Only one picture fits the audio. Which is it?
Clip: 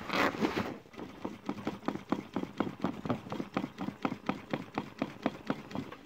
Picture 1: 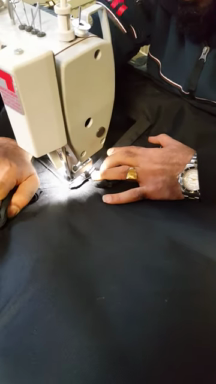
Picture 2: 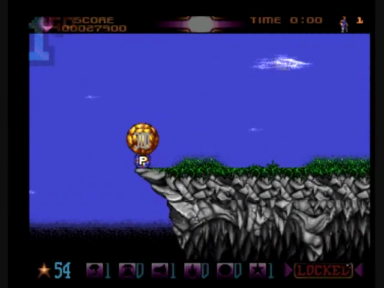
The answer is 1